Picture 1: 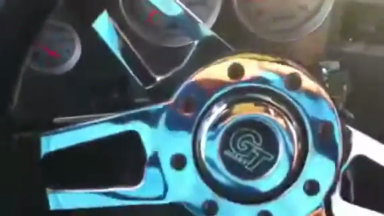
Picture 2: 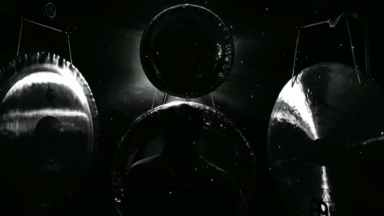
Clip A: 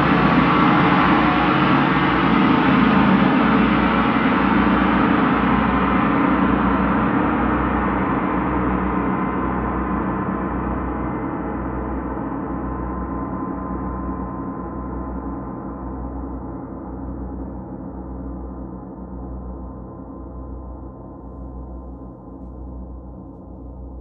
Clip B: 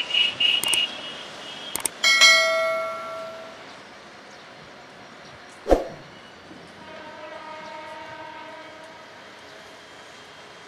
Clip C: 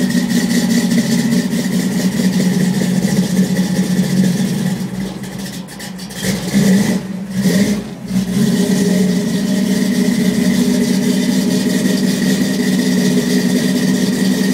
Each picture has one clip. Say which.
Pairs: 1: C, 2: A